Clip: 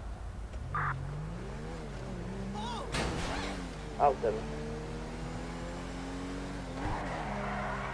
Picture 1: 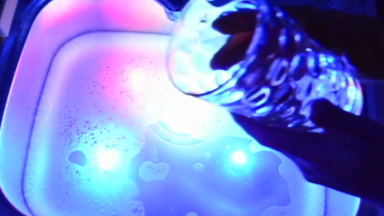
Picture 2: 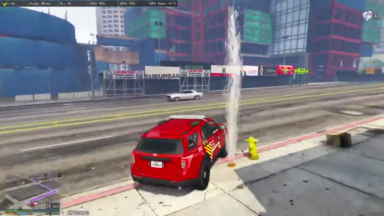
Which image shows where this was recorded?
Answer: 2